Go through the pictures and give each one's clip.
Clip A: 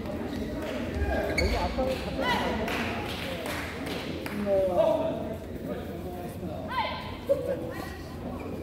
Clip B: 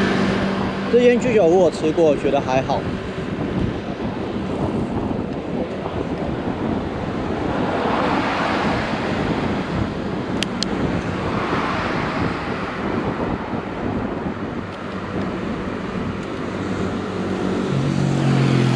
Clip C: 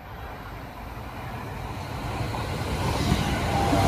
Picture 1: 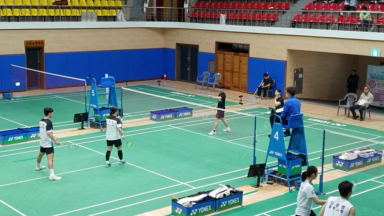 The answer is A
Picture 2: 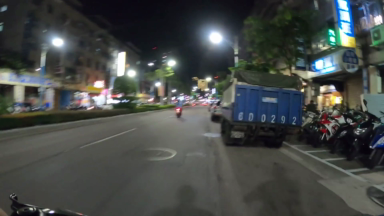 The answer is B